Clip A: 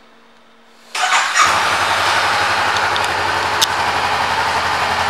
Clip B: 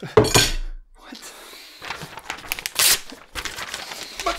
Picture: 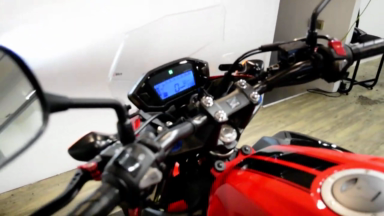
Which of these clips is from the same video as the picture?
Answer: A